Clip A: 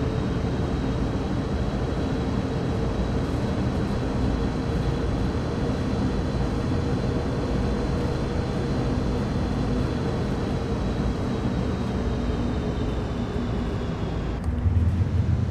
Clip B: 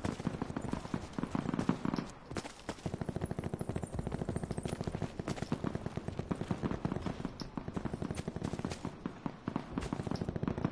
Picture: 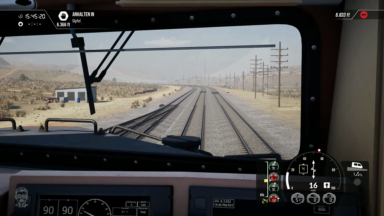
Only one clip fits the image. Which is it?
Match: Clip A